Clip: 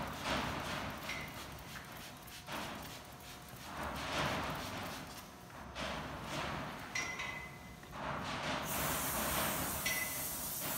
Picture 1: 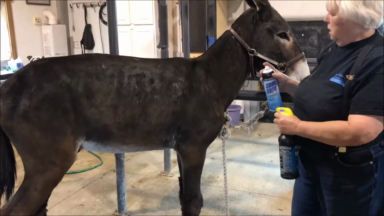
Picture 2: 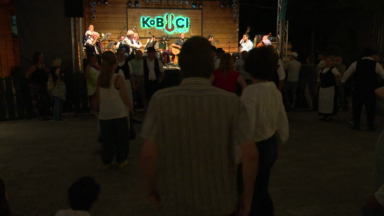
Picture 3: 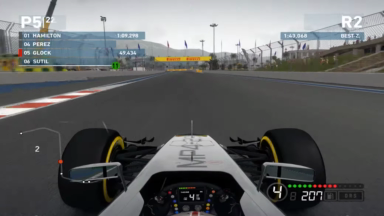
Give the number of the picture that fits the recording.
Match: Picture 1